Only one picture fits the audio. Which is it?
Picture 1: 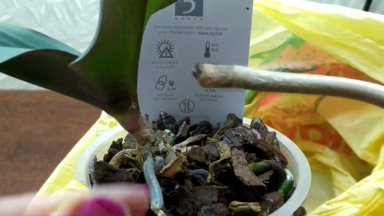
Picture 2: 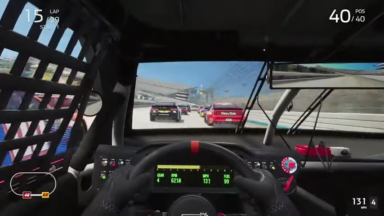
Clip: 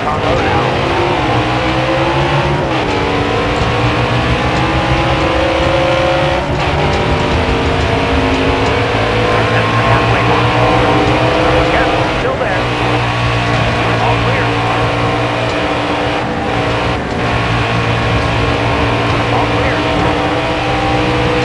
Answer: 2